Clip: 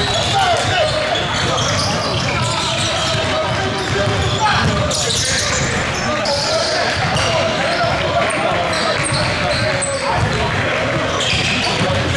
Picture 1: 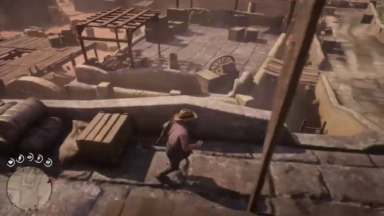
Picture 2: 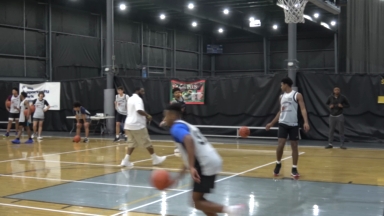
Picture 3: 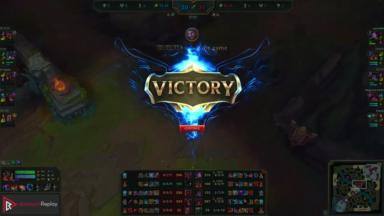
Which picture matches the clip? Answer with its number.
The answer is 2